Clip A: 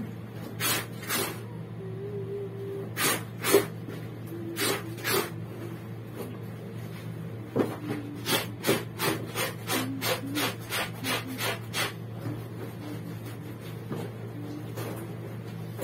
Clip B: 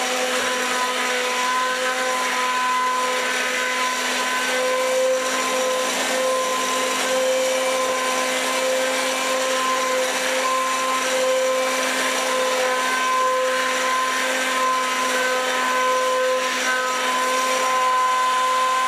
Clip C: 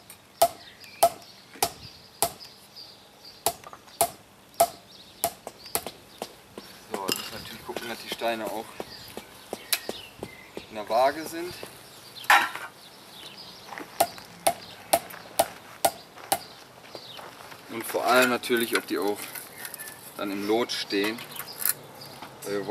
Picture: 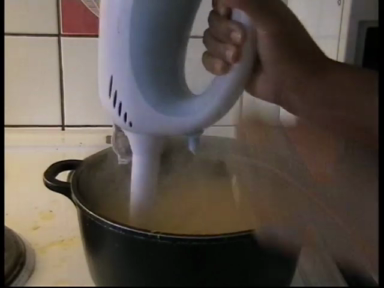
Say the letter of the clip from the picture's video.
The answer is B